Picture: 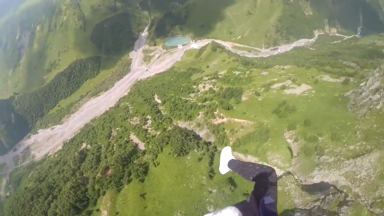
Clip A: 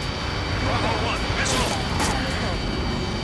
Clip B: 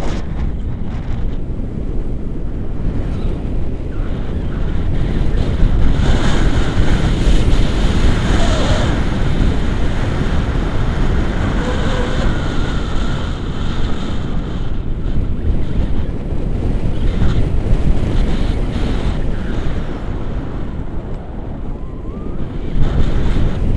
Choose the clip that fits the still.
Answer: B